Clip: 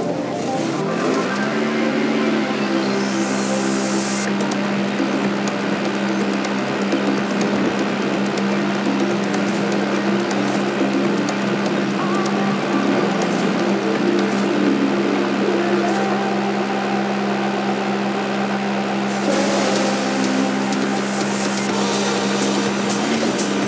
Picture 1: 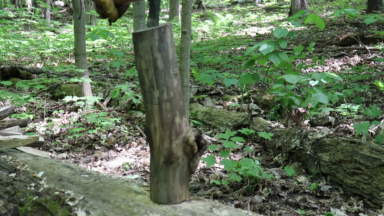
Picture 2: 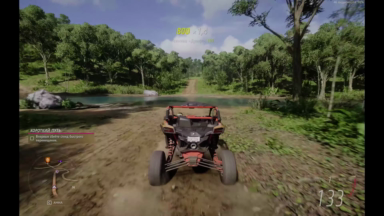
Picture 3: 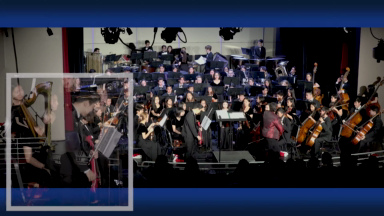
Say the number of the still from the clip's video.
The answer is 2